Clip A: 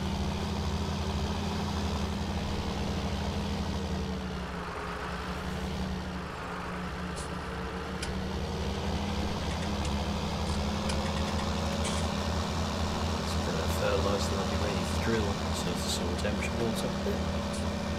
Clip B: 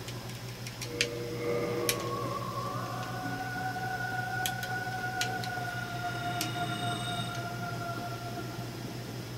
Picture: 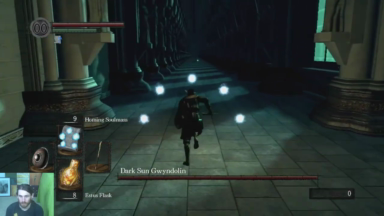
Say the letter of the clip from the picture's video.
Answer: B